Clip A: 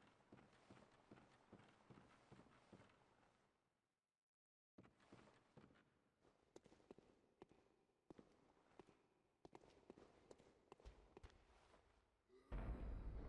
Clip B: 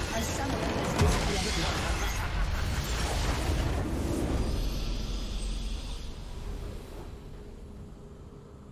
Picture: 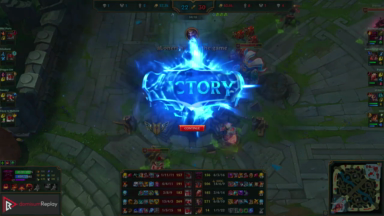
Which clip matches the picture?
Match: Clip B